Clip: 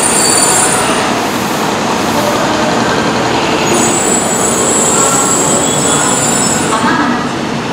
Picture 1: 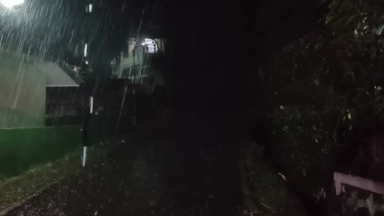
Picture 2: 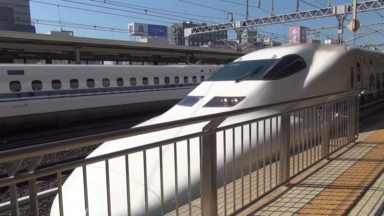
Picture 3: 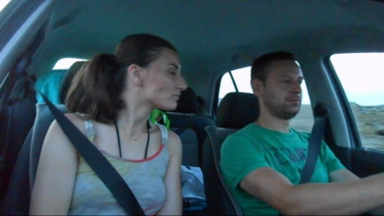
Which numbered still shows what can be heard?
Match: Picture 2